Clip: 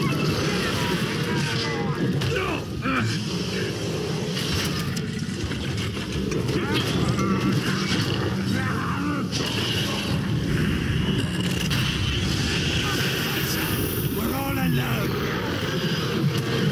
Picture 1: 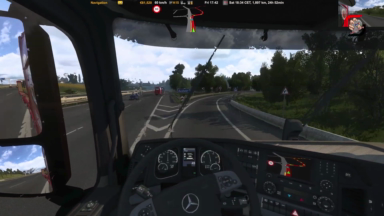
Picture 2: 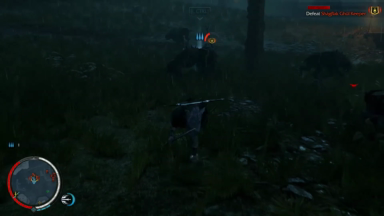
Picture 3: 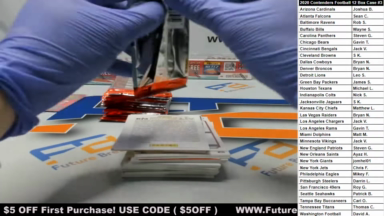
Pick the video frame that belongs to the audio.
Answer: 2